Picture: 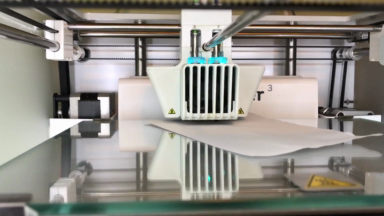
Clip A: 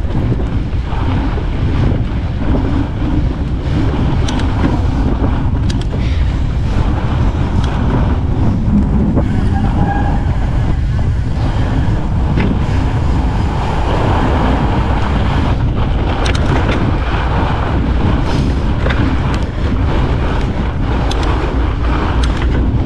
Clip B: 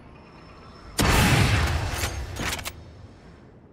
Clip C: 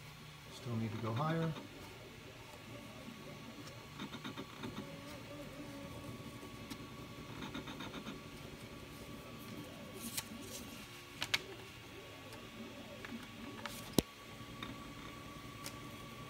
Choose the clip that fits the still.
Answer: C